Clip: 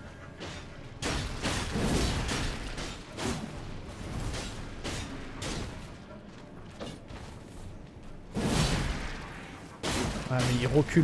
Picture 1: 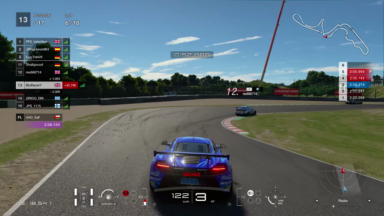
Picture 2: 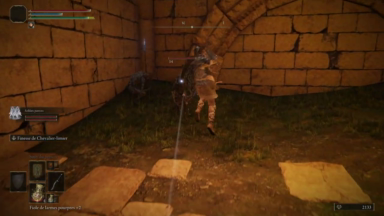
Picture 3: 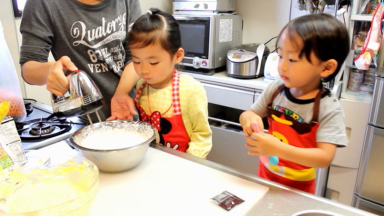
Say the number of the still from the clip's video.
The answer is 2